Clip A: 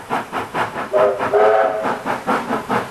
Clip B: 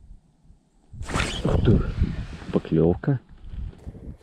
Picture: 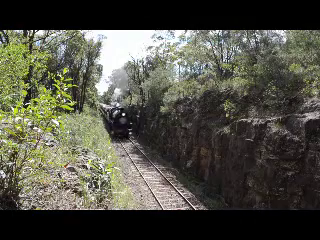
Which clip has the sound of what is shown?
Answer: A